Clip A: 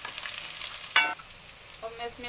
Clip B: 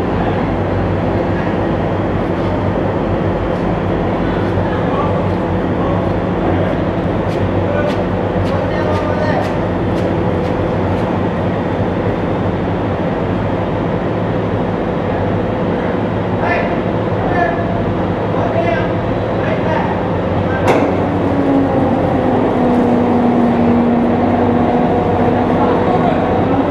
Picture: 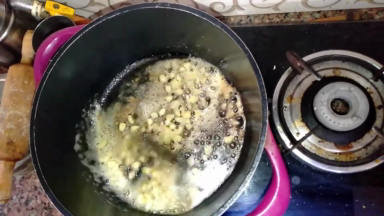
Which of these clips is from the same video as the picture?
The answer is A